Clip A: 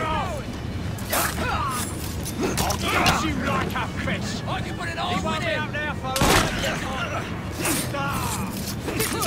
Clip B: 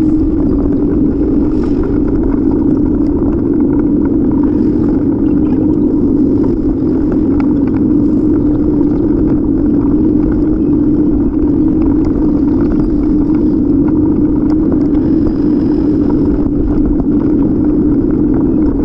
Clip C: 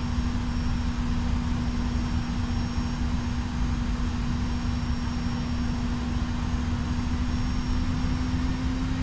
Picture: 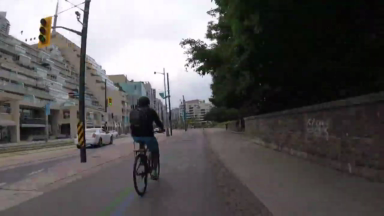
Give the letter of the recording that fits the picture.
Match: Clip B